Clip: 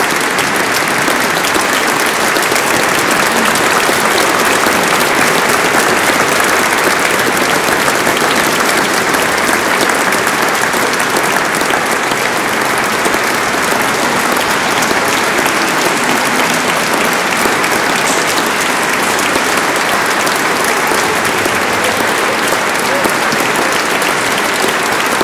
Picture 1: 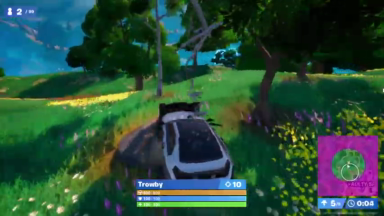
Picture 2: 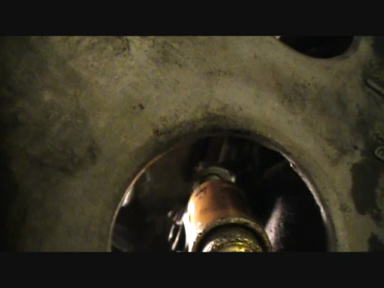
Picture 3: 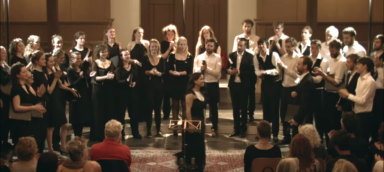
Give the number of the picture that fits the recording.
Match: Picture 3